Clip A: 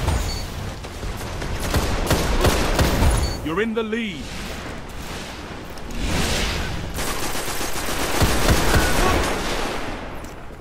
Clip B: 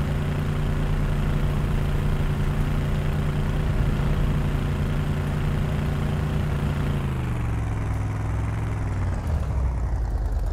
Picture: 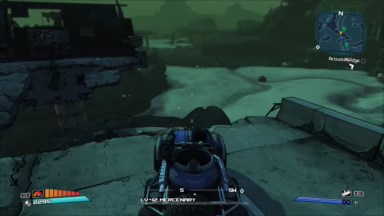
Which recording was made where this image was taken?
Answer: B